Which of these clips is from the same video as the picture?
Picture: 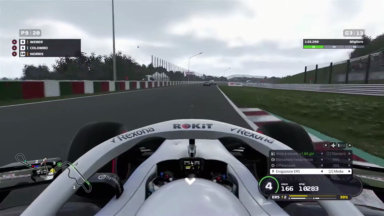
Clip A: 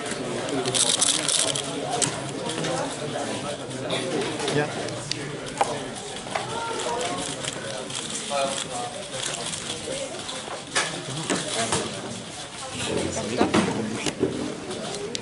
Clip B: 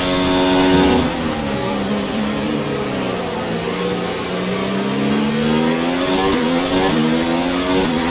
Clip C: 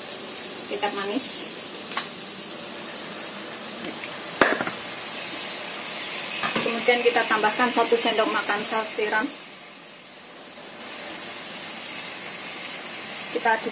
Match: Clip B